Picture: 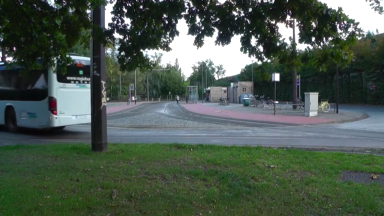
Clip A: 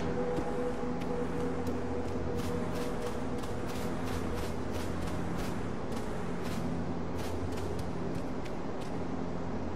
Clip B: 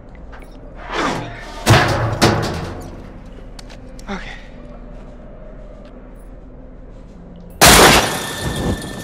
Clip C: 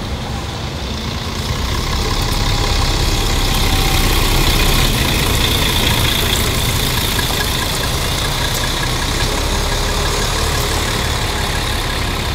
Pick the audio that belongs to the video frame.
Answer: C